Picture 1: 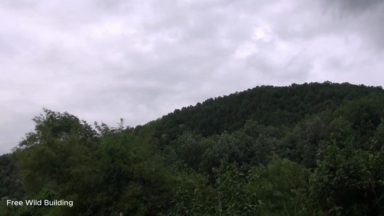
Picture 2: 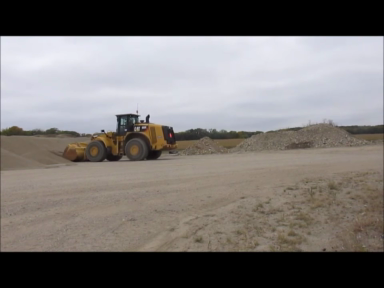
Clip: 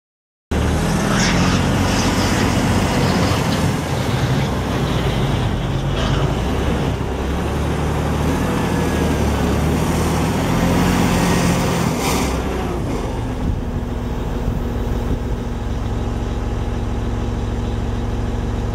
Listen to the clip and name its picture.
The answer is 2